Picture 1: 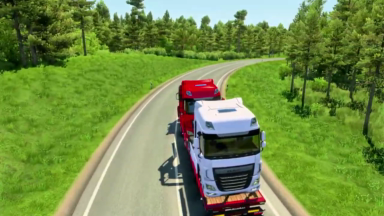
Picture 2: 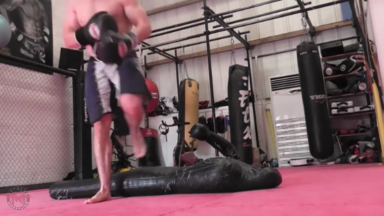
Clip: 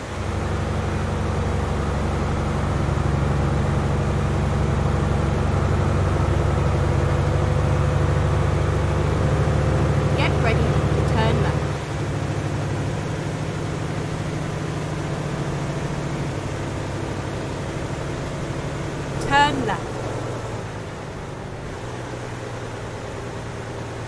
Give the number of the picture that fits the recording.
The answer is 1